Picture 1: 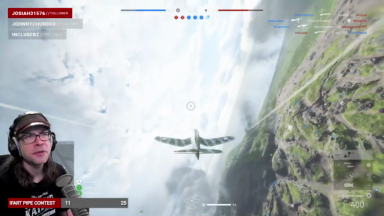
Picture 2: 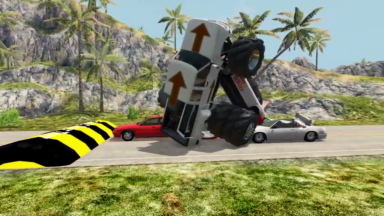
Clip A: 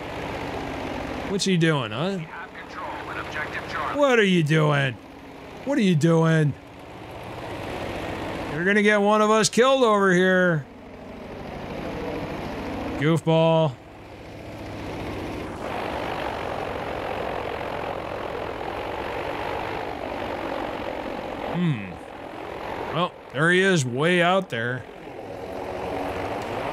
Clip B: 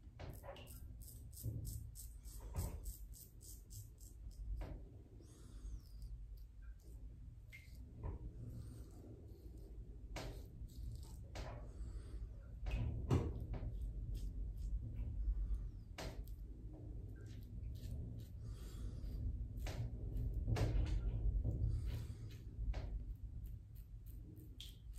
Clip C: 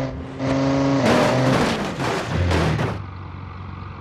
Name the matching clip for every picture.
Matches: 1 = A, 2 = C